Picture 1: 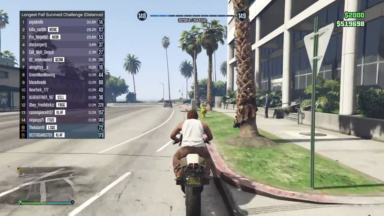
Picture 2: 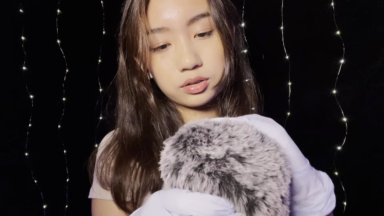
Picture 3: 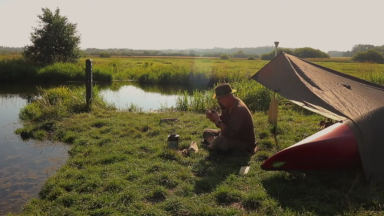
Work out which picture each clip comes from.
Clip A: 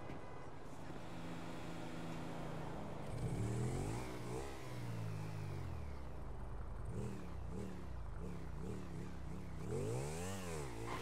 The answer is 1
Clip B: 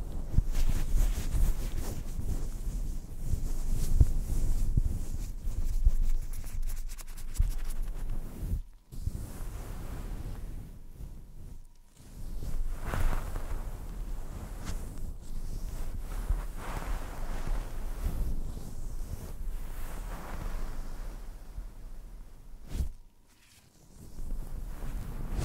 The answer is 2